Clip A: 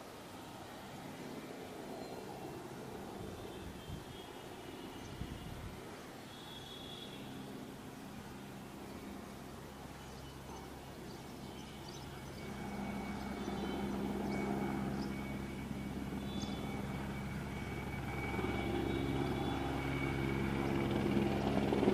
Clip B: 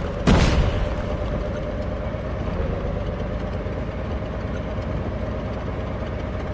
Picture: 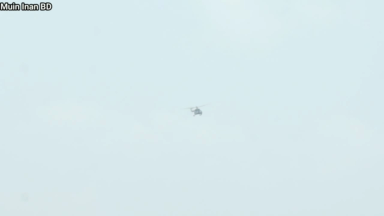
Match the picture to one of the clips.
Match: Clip A